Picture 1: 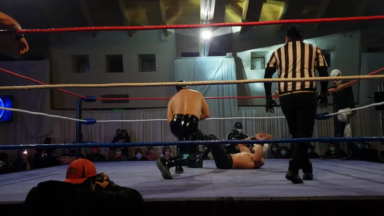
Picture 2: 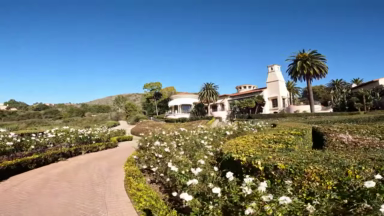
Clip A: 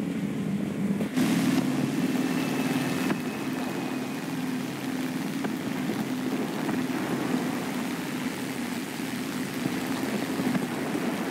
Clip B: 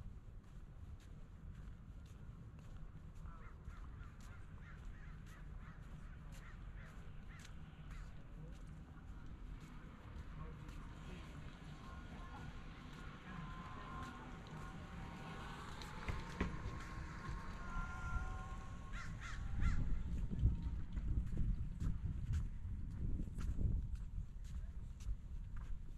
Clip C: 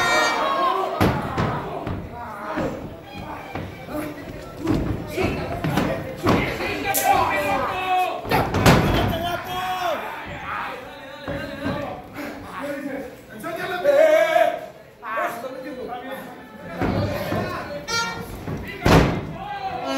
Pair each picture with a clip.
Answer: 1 C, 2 B